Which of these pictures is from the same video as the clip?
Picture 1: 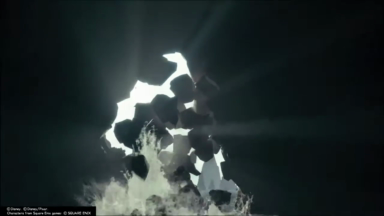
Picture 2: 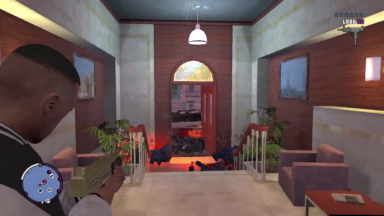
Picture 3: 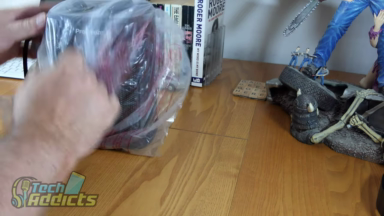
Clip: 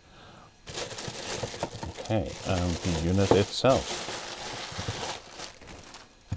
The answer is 3